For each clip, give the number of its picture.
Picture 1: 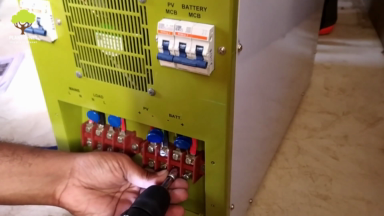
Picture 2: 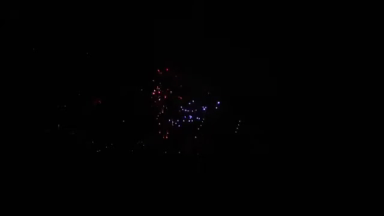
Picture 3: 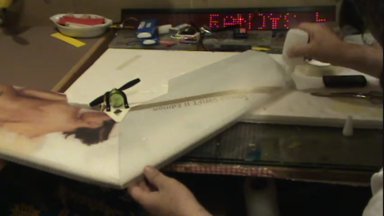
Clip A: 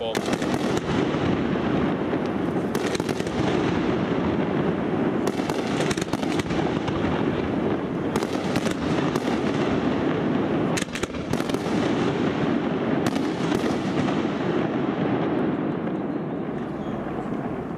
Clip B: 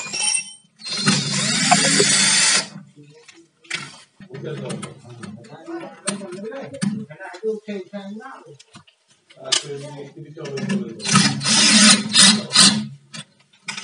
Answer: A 2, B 1